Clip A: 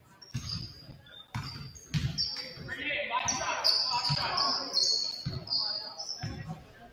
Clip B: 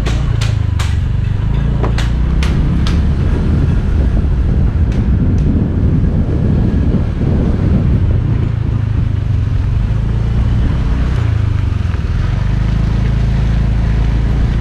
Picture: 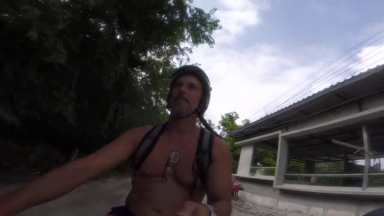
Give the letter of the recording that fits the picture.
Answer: B